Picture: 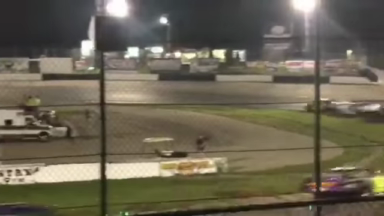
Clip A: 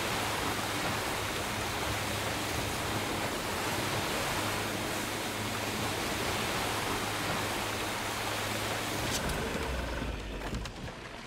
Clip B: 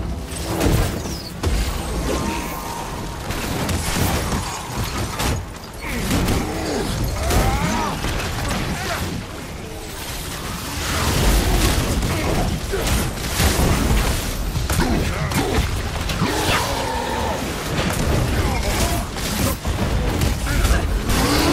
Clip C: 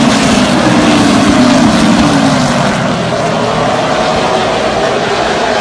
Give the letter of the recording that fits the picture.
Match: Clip C